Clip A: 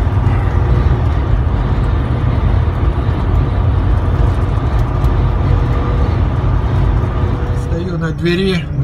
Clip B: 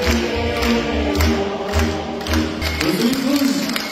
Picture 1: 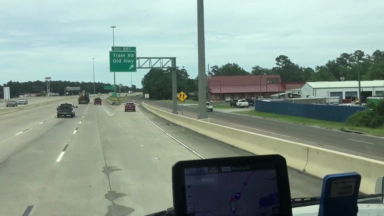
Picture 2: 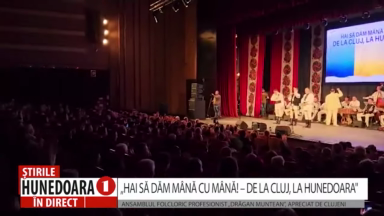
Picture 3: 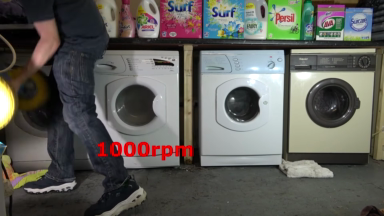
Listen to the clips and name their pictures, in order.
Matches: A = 1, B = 2